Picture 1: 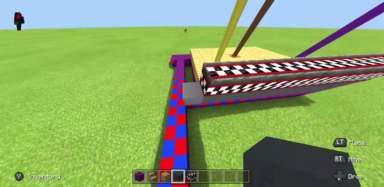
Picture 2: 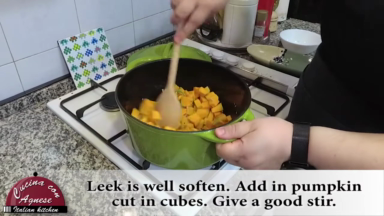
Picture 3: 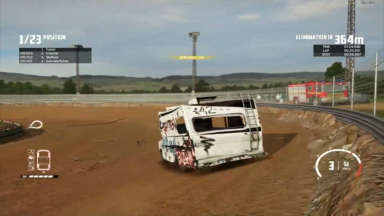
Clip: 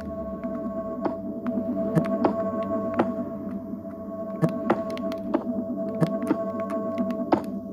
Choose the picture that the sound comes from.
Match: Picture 1